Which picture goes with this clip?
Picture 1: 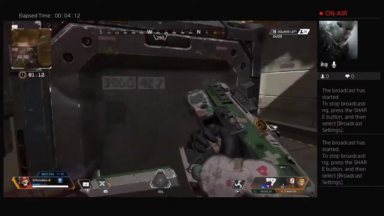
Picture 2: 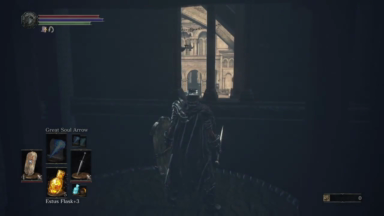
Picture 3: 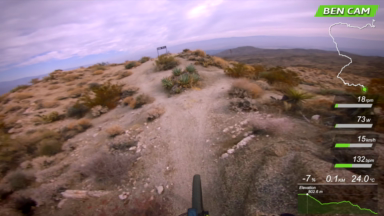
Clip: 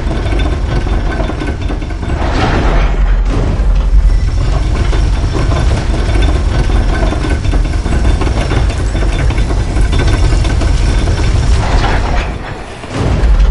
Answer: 2